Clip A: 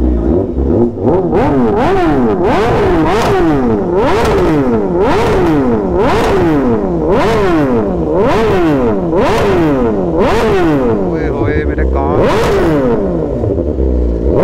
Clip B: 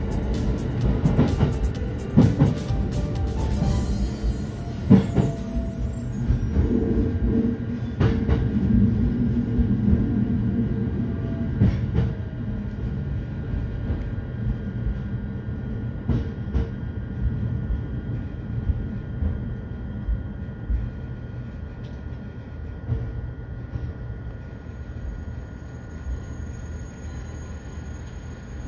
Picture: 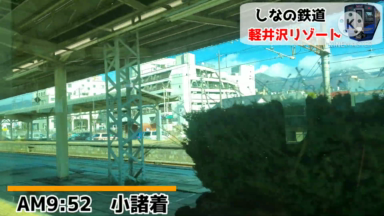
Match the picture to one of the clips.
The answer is B